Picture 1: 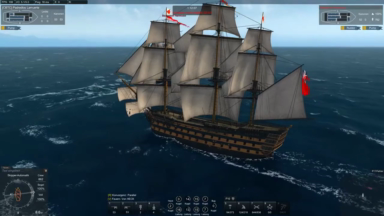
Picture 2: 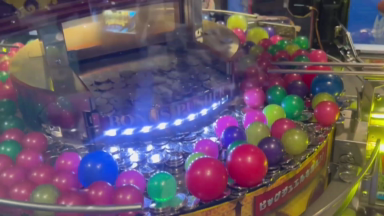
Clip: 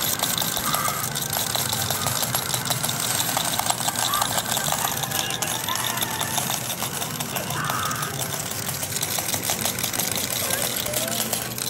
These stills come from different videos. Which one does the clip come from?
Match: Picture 2